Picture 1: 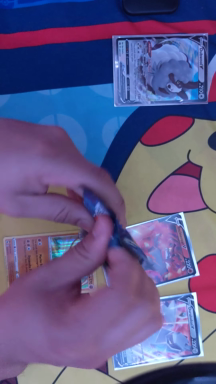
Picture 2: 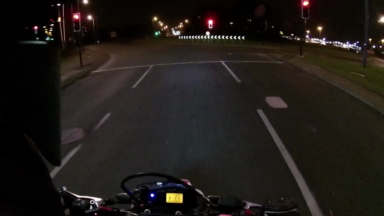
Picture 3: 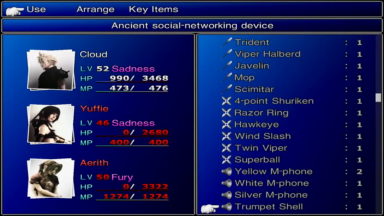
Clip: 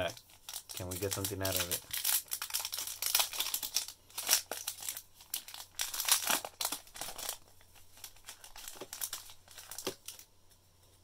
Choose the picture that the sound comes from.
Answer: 1